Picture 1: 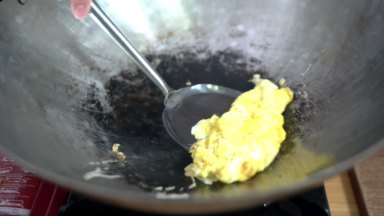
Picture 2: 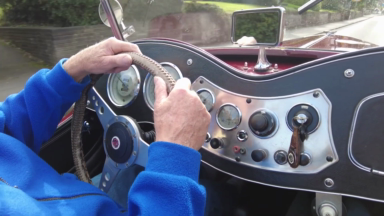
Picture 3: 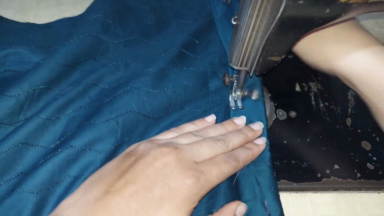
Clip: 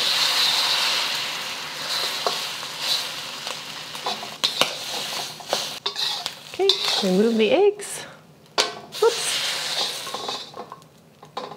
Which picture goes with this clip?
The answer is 1